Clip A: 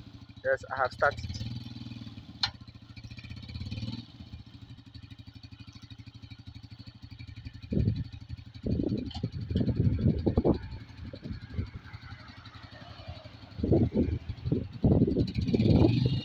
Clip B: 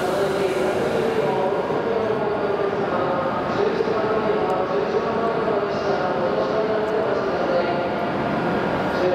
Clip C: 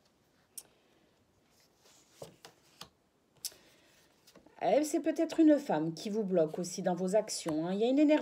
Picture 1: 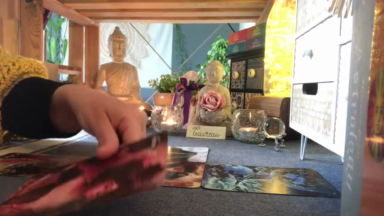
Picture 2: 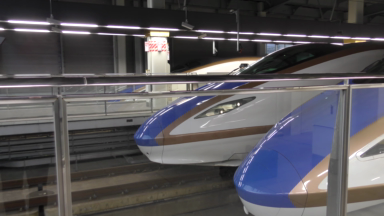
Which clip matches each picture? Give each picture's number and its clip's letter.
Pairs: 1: C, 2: B